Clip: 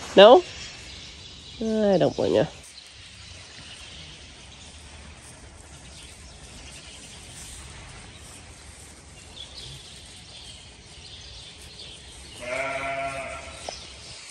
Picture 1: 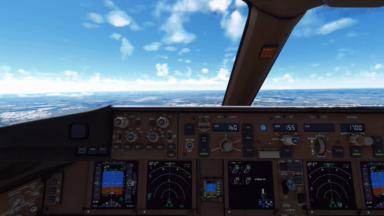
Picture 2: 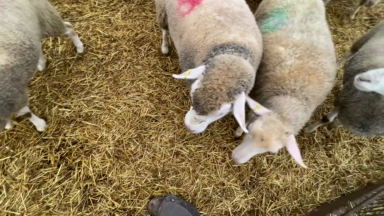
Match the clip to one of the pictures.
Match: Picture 2